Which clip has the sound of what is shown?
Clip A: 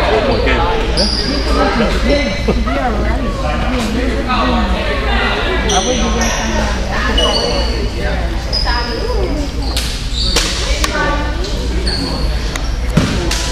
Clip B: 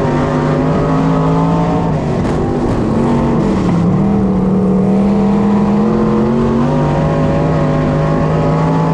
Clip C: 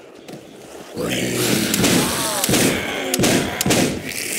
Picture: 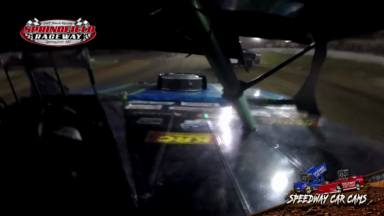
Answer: B